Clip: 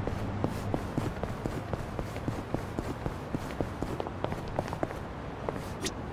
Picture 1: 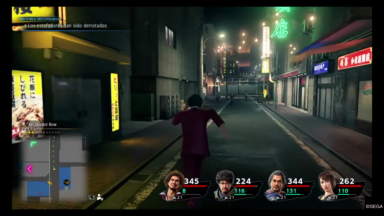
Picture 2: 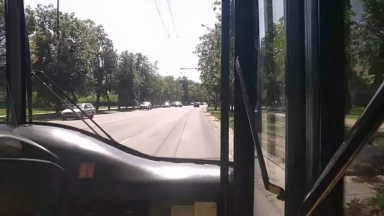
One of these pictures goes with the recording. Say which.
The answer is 1